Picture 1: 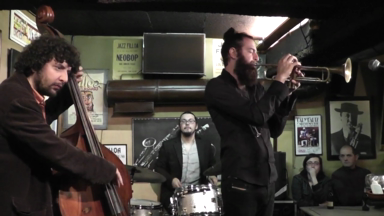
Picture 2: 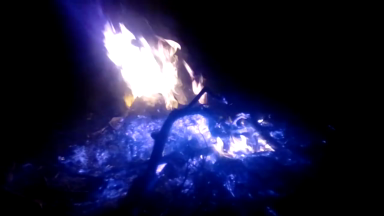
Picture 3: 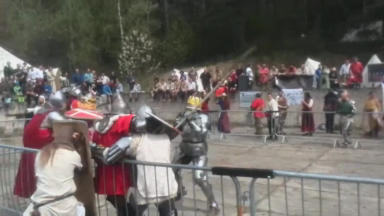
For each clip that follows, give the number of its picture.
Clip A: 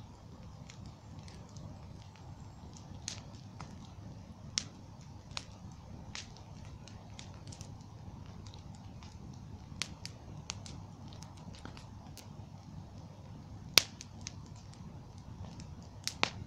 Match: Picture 2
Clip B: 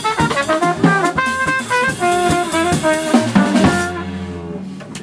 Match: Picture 1